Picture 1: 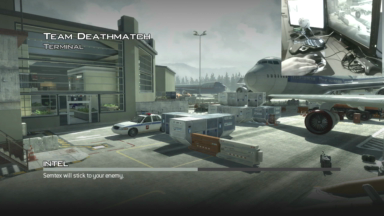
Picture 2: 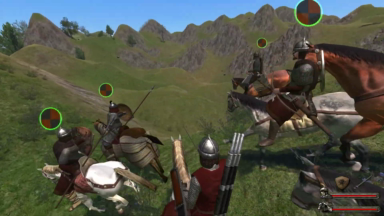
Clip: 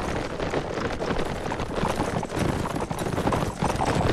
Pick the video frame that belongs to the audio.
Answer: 2